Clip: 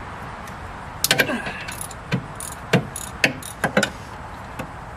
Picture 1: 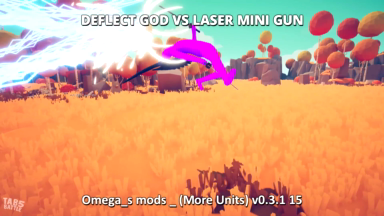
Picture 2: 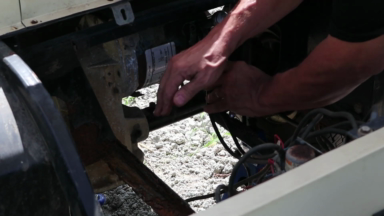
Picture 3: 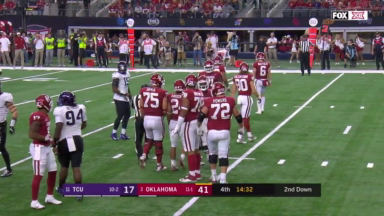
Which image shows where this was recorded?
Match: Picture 2